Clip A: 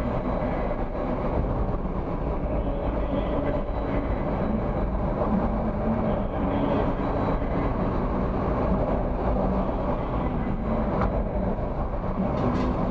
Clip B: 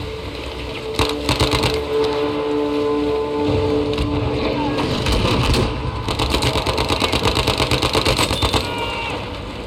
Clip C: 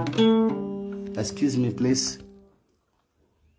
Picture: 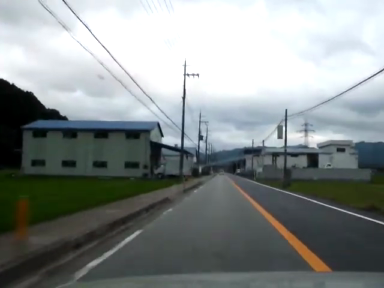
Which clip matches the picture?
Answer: A